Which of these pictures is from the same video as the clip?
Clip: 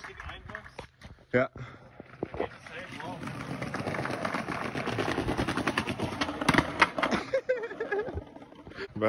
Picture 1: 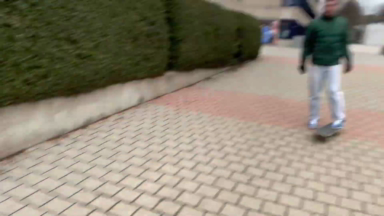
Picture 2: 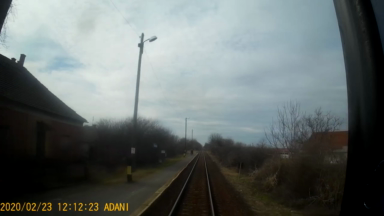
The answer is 1